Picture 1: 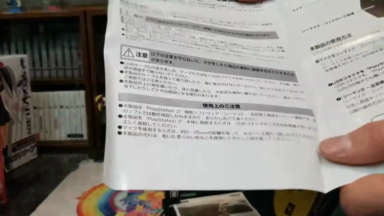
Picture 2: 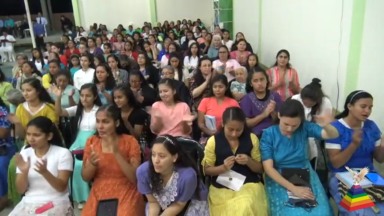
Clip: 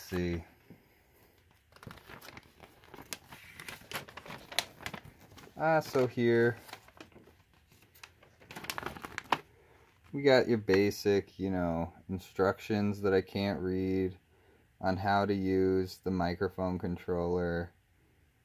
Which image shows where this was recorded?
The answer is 1